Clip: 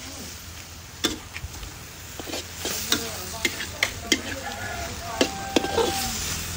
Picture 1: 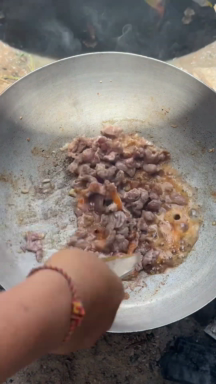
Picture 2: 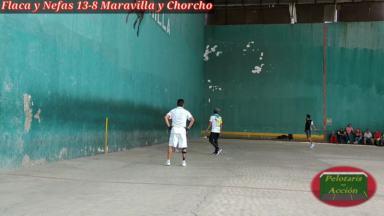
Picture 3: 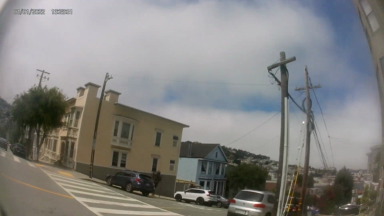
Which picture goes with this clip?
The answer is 1